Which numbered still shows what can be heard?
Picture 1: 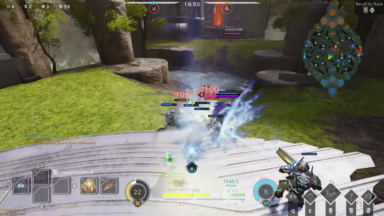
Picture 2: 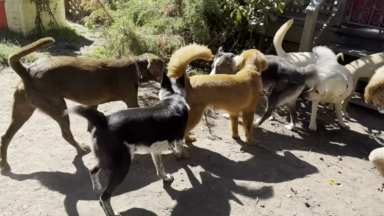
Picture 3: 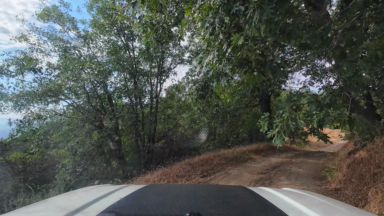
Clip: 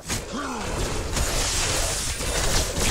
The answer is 1